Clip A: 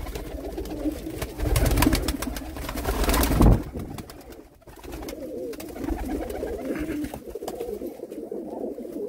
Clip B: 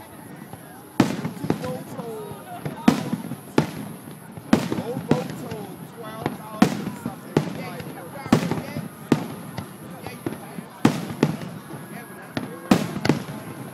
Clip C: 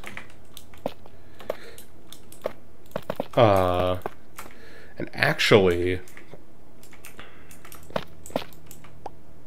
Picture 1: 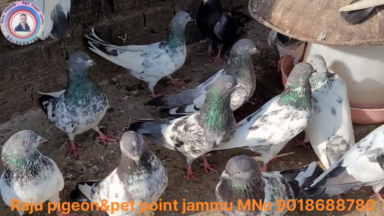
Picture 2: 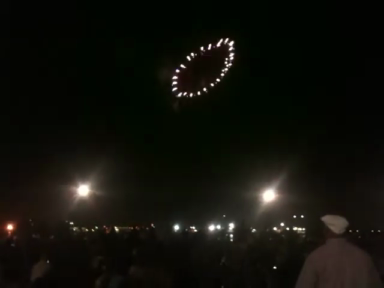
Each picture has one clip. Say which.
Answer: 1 A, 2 B